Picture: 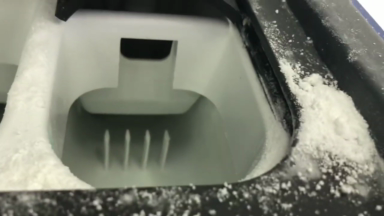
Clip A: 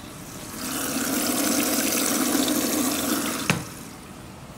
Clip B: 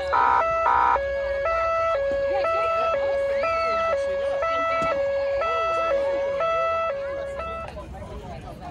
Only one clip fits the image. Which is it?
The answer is A